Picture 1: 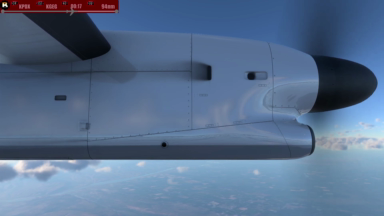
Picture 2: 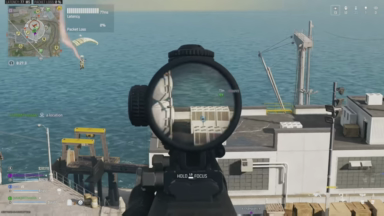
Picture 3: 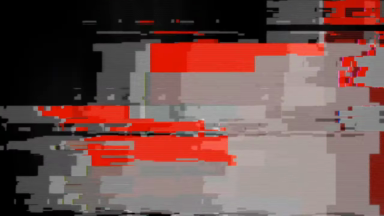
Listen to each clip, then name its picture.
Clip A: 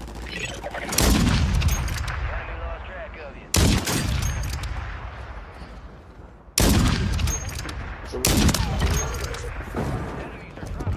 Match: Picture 2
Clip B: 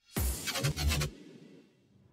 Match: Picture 3